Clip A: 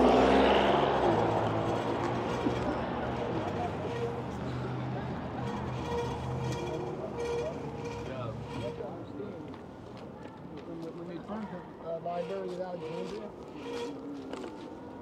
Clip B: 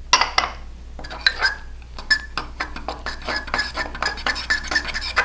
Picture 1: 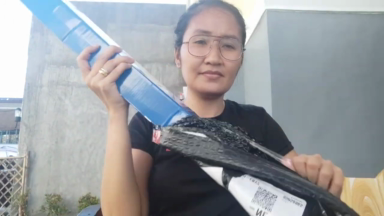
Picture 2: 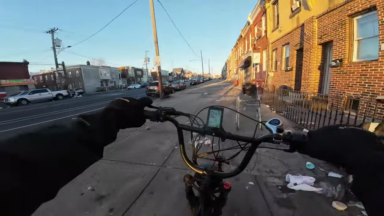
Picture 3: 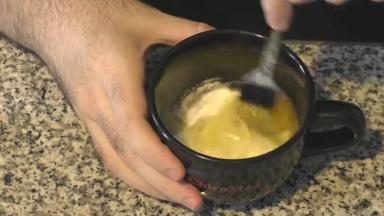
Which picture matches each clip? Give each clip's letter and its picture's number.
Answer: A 2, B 3